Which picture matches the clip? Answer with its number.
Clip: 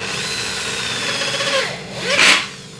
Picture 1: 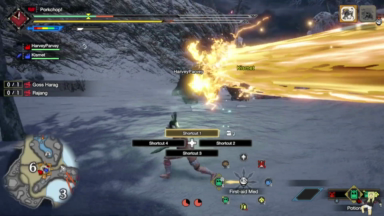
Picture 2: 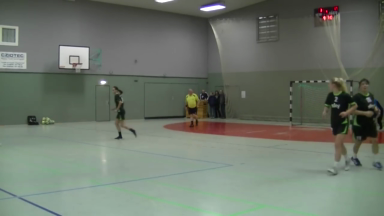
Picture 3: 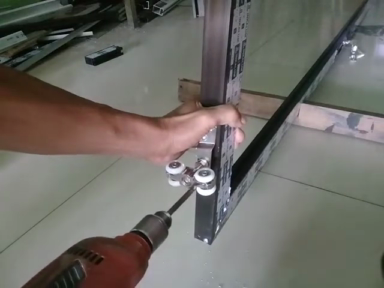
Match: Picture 3